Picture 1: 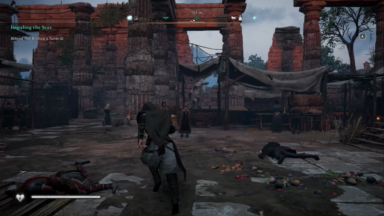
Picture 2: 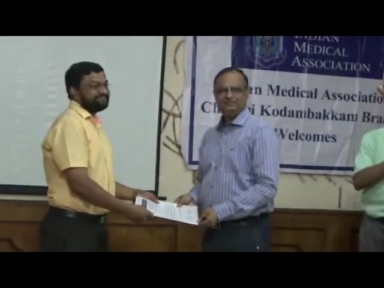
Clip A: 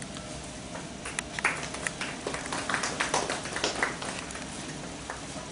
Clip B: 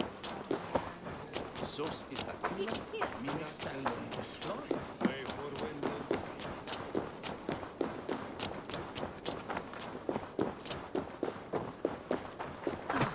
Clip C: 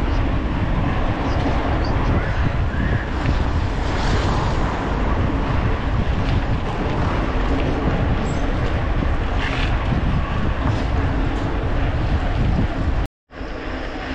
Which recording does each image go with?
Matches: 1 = B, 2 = A